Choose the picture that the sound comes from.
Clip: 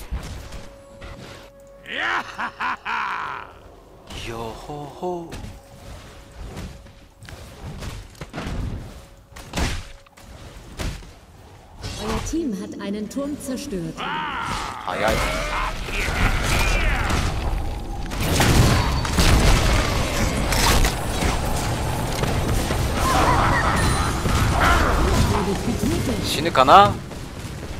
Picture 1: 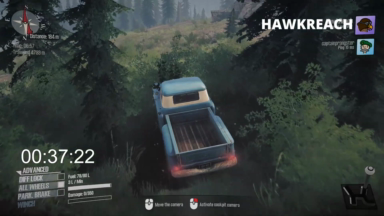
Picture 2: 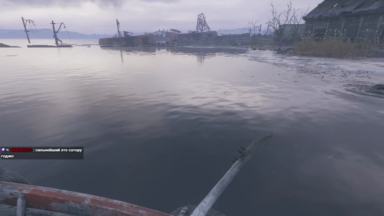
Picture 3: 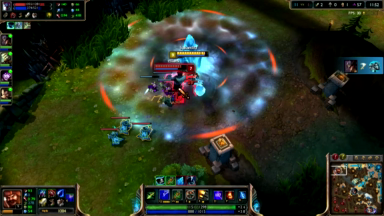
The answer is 3